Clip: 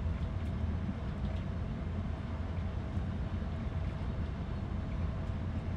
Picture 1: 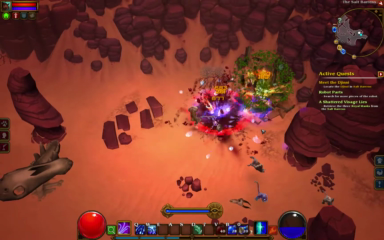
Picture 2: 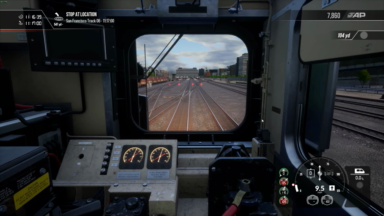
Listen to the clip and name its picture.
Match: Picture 2